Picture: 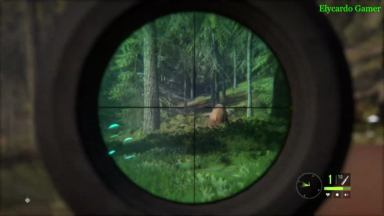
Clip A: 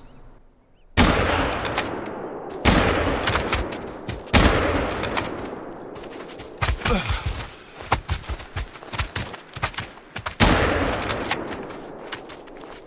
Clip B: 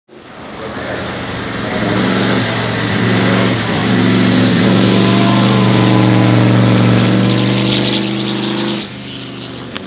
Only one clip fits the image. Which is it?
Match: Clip A